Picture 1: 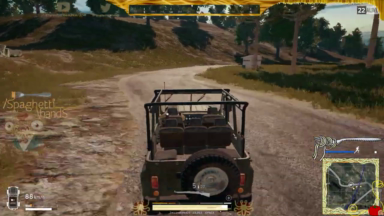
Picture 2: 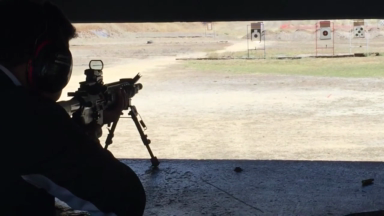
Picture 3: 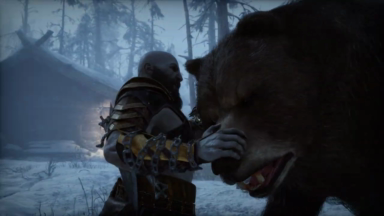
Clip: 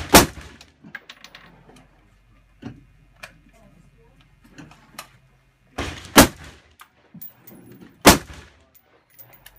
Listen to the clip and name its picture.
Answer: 2